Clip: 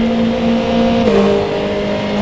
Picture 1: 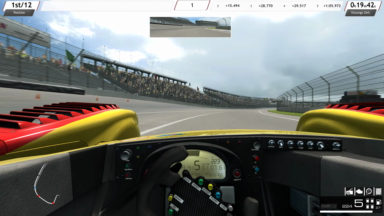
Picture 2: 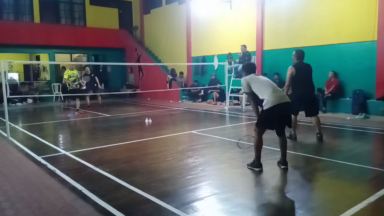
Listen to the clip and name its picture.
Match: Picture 1